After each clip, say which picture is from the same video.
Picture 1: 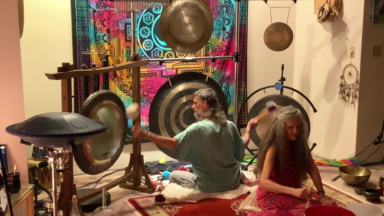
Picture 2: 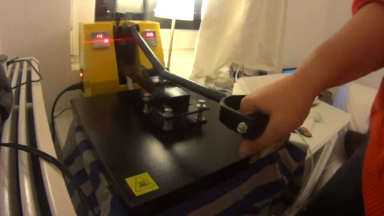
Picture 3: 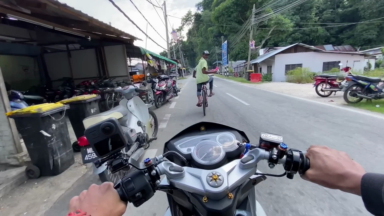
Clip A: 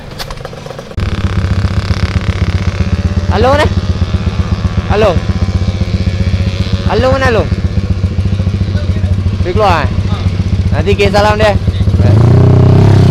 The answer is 3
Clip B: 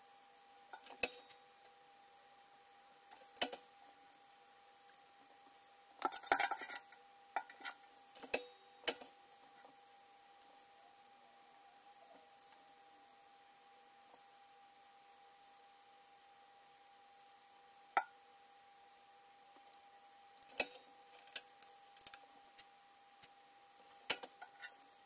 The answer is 2